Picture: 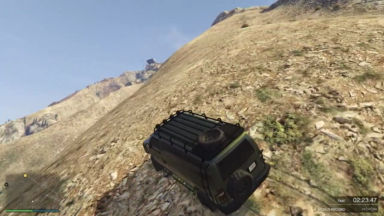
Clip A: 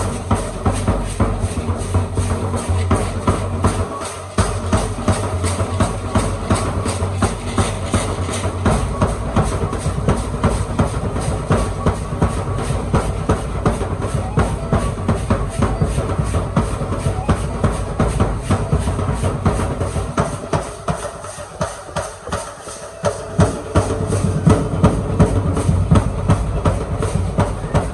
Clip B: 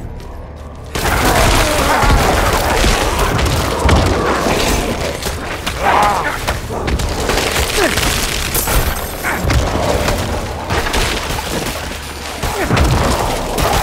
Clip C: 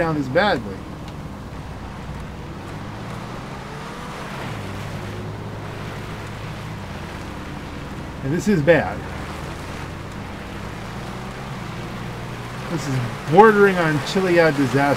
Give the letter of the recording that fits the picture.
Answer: C